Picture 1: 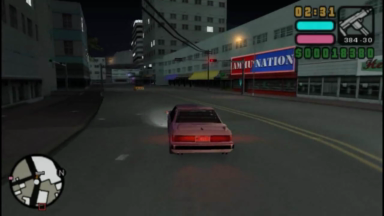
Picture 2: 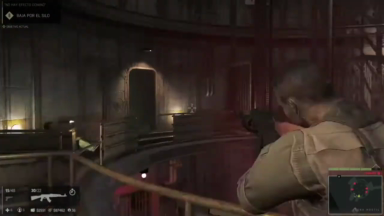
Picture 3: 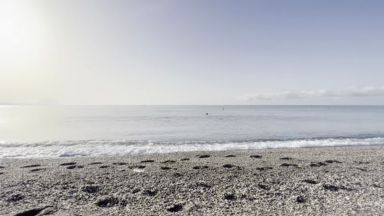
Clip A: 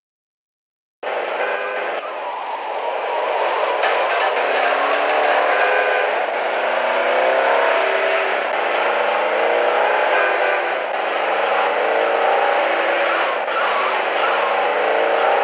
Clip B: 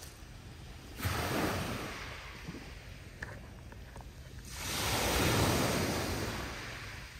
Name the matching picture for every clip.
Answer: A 1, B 3